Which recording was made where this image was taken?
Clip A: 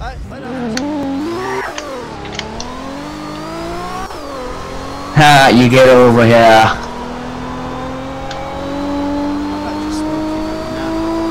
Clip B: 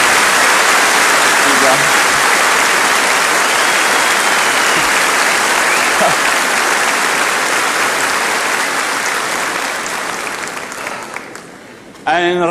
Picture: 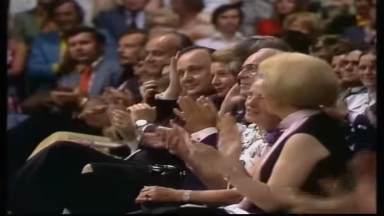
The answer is B